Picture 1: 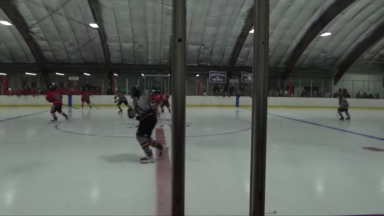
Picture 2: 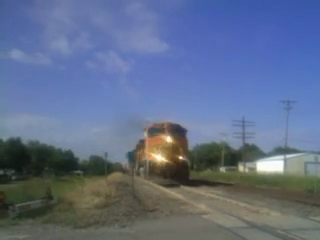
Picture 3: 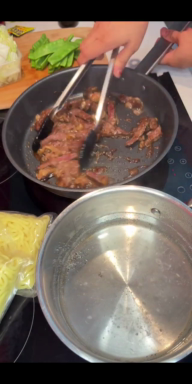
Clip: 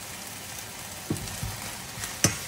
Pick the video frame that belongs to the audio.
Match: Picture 3